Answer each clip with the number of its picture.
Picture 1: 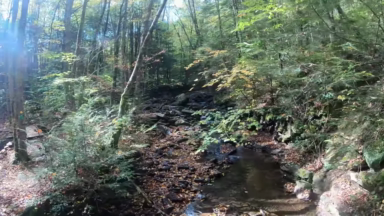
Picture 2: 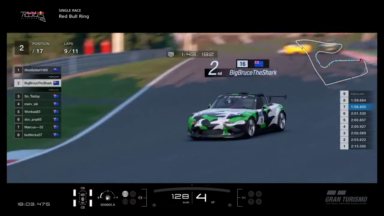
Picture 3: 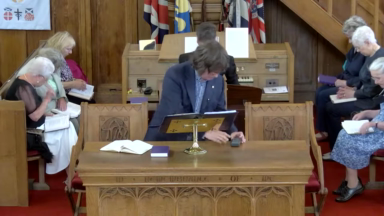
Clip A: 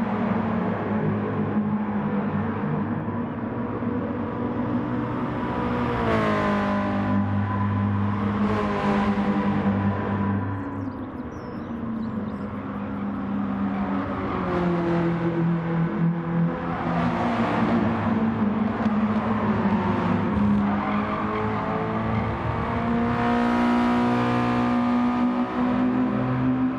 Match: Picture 2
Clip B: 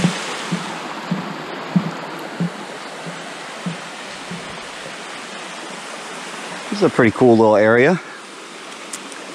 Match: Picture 1